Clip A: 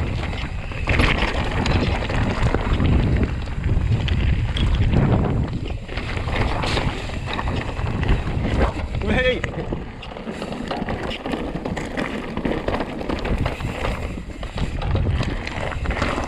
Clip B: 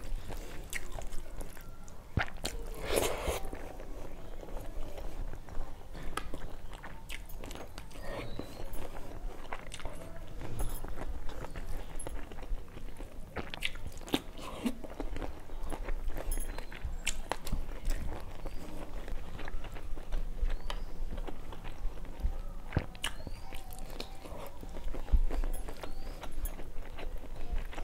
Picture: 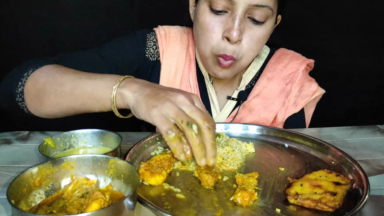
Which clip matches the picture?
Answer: B